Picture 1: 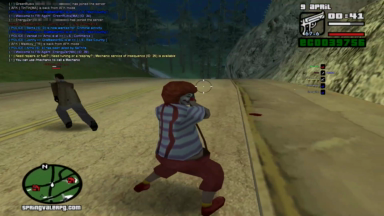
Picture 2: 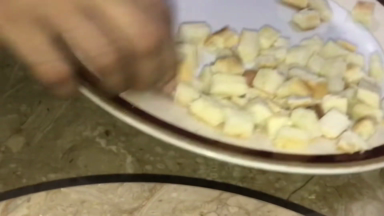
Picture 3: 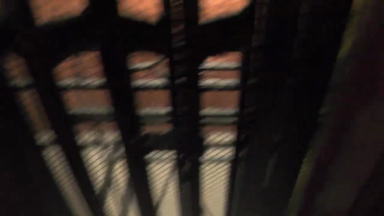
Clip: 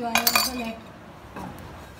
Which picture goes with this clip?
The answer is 2